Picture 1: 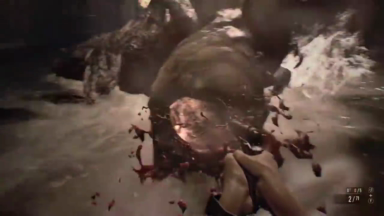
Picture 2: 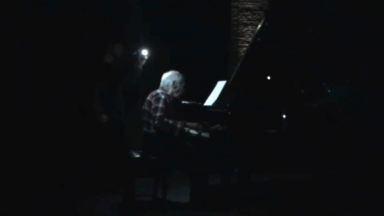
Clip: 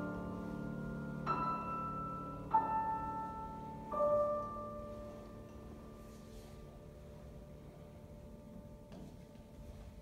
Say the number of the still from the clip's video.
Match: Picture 2